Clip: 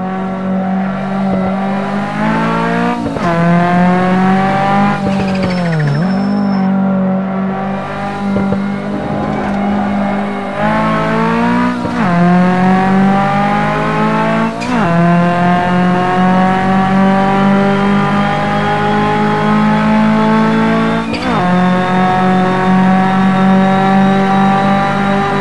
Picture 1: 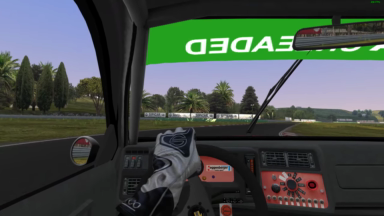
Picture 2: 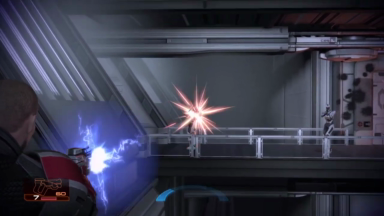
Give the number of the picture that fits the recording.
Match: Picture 1